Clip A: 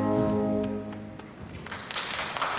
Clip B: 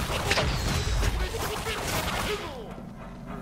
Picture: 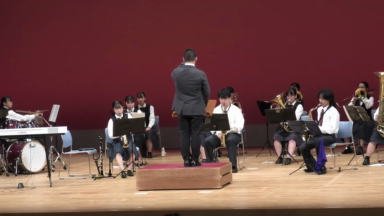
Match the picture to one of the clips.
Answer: A